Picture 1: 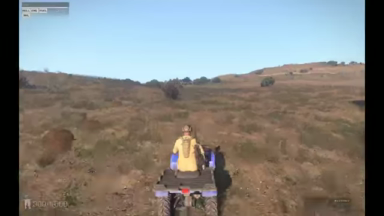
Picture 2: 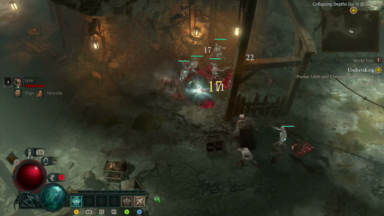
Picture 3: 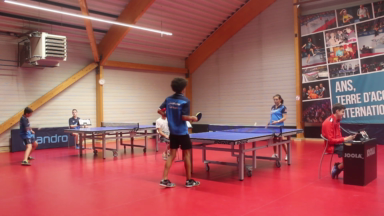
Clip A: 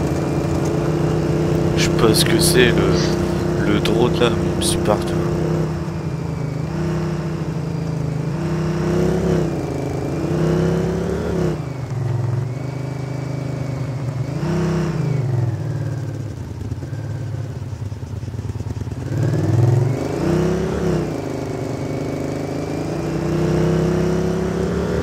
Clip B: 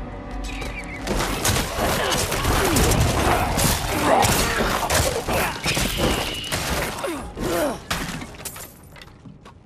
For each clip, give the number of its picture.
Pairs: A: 1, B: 2